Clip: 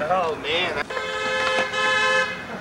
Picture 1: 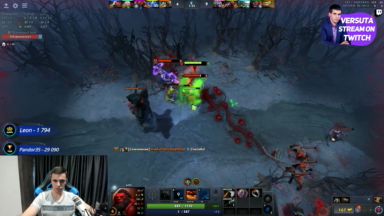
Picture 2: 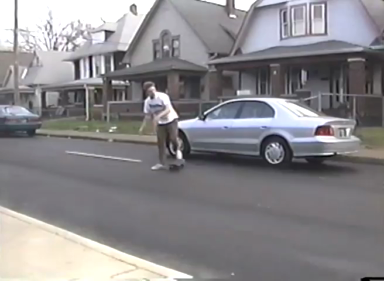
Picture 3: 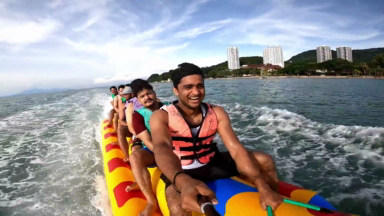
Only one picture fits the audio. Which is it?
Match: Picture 2